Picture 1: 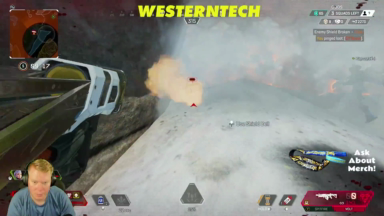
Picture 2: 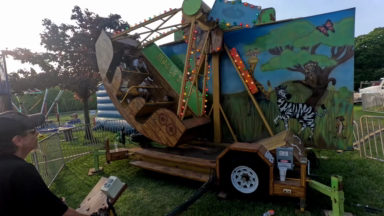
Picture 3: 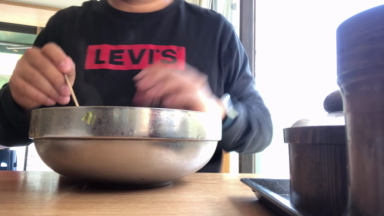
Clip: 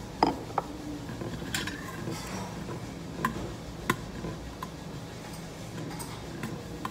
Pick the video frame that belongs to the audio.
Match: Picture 3